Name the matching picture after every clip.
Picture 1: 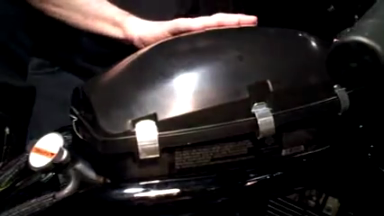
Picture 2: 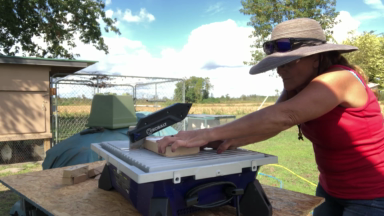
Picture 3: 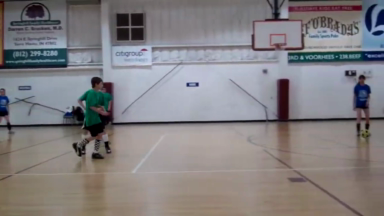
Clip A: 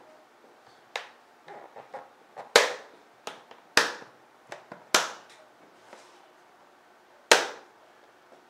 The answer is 1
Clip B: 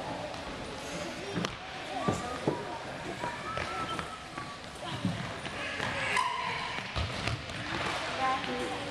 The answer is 3